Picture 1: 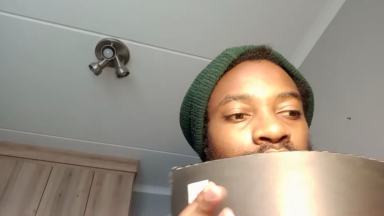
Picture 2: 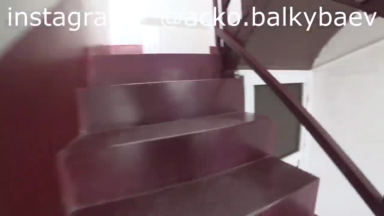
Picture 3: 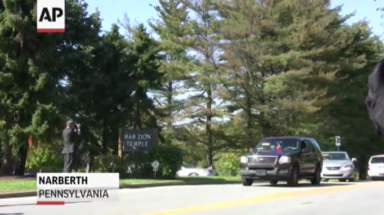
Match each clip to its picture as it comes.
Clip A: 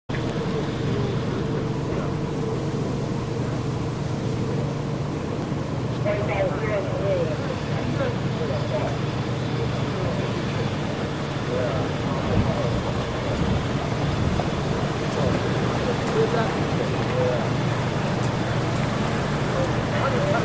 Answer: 3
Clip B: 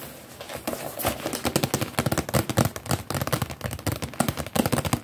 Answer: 1